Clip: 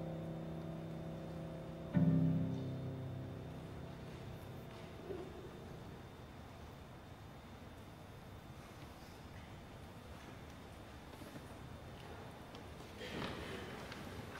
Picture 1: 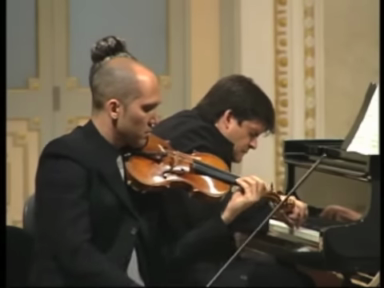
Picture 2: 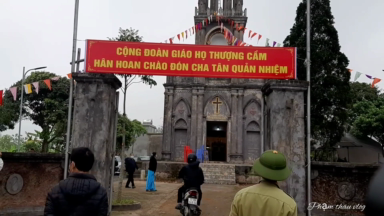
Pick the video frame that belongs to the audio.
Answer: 1